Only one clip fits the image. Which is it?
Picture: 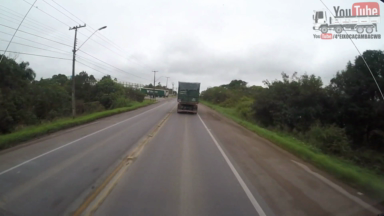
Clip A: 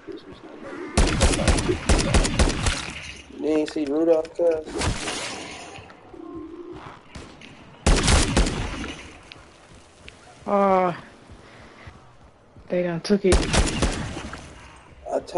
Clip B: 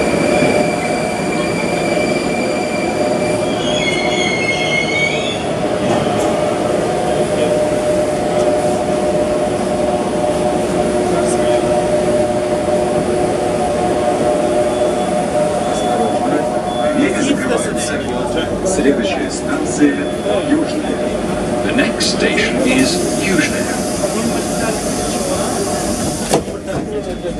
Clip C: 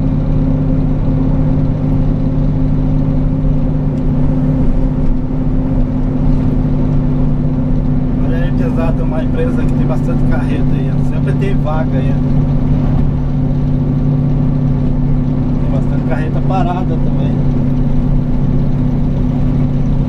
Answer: C